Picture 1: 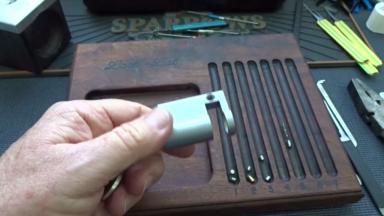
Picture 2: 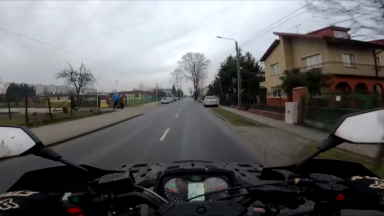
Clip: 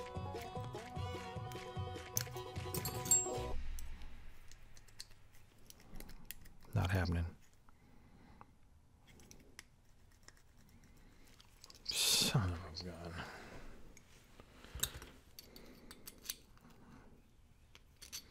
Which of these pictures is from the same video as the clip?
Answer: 1